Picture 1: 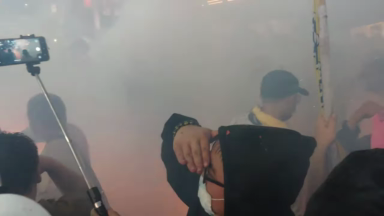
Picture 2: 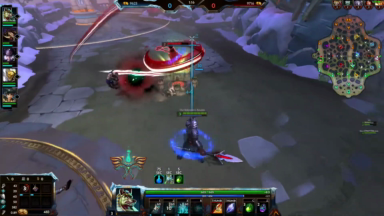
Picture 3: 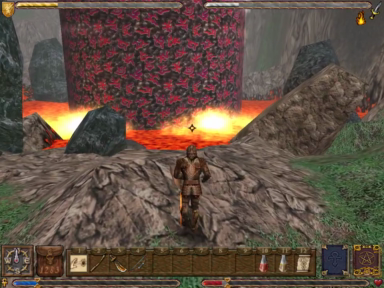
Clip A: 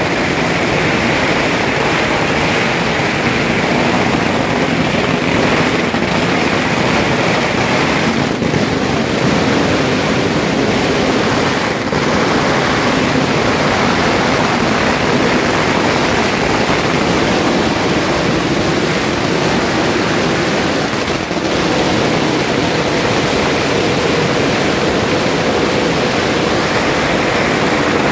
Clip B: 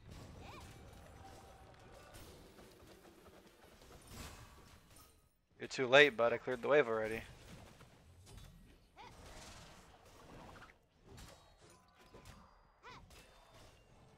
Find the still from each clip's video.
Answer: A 1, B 2